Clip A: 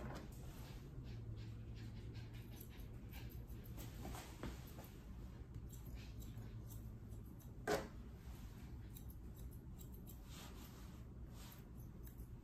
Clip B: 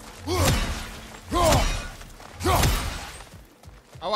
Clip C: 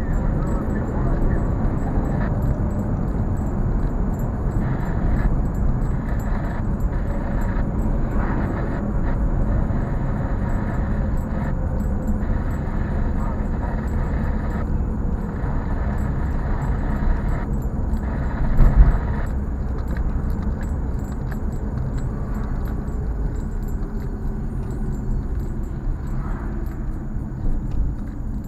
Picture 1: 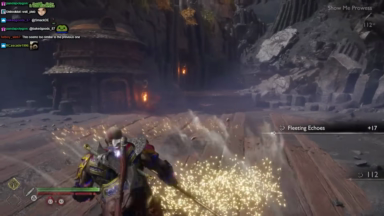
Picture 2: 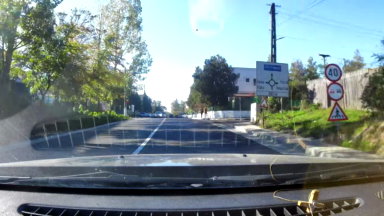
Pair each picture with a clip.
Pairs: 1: B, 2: C